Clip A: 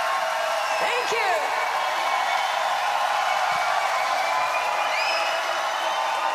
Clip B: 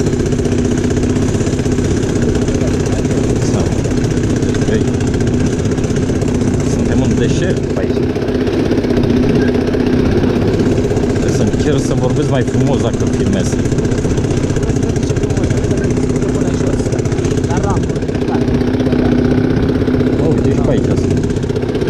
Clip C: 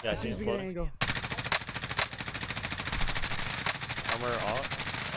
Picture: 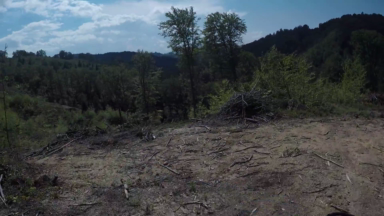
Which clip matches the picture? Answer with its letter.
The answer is B